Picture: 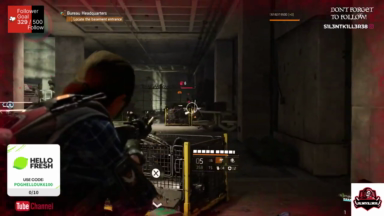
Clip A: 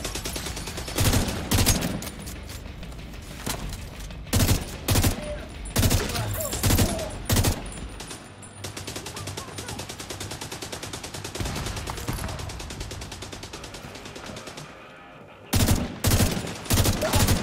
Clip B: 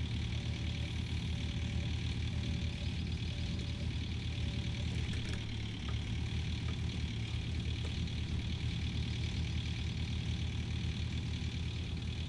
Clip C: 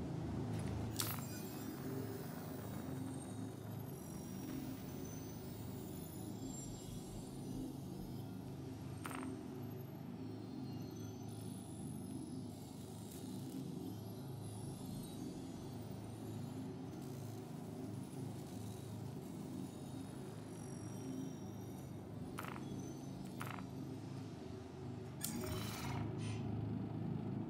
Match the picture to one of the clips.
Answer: A